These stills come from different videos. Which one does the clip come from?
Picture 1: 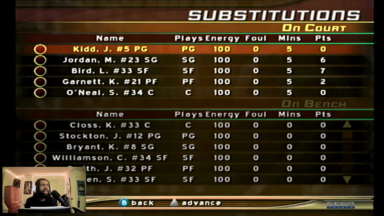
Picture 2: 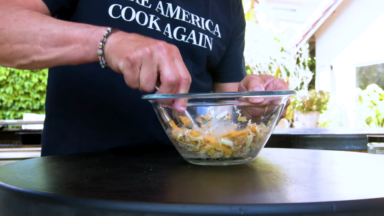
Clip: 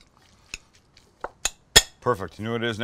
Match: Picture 2